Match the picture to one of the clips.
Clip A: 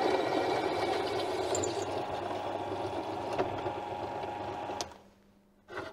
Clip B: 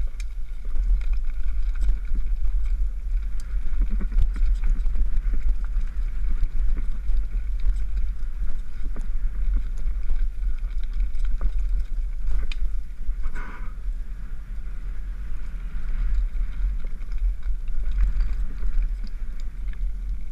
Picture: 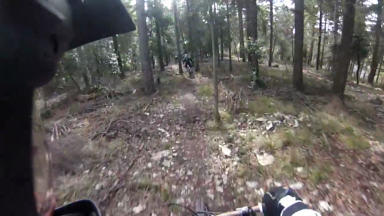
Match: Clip B